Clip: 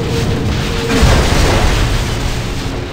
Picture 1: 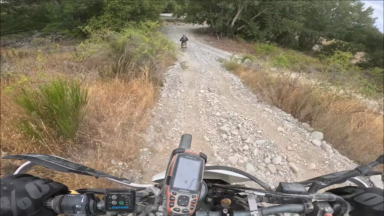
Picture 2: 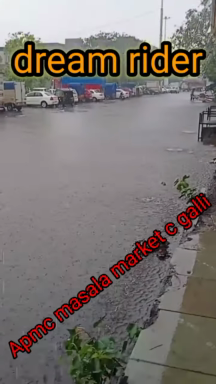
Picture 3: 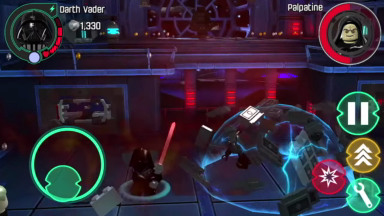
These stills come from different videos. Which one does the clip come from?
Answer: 3